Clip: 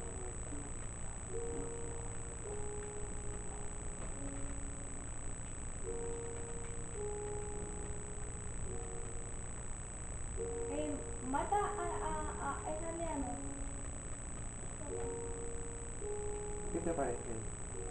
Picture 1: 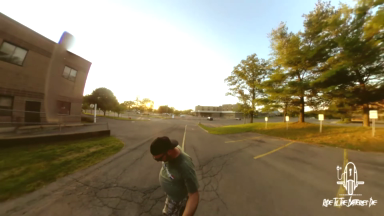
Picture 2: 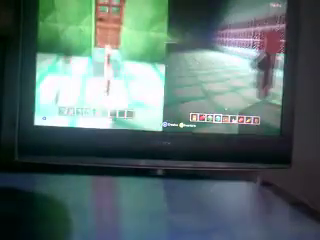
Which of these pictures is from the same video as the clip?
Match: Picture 2